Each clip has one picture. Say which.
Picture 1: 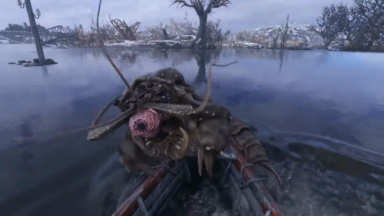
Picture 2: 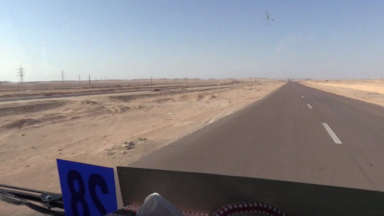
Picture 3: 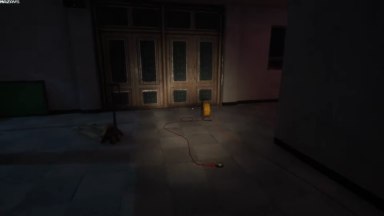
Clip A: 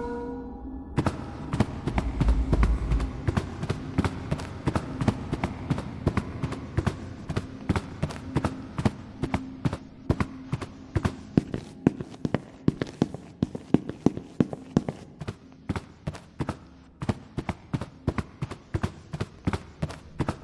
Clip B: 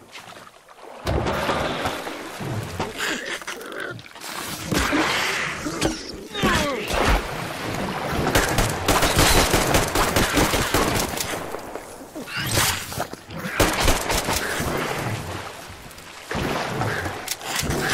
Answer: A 3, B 1